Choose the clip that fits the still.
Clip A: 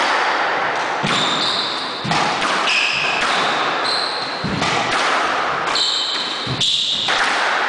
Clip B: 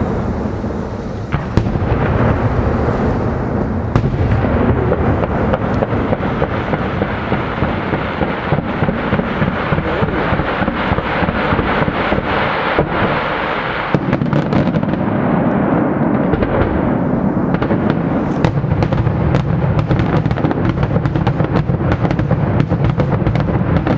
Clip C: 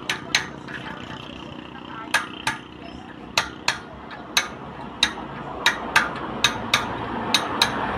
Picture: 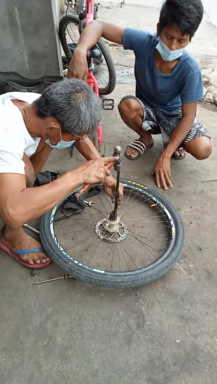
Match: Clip C